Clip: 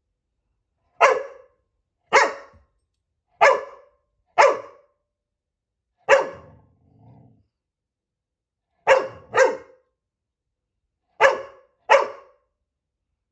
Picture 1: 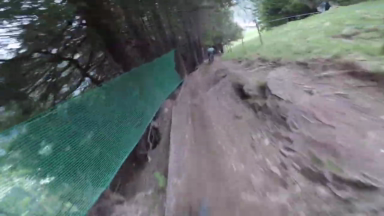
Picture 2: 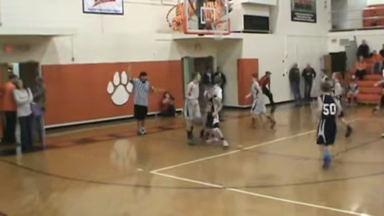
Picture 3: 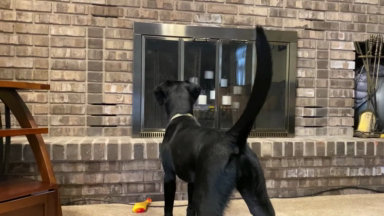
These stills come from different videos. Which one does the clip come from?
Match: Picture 3